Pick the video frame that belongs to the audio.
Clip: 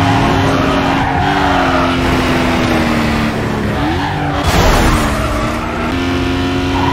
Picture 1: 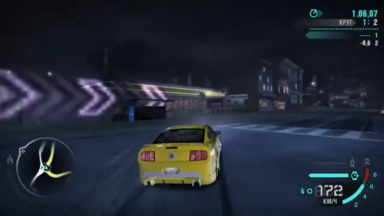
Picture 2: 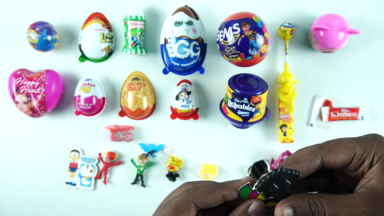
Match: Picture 1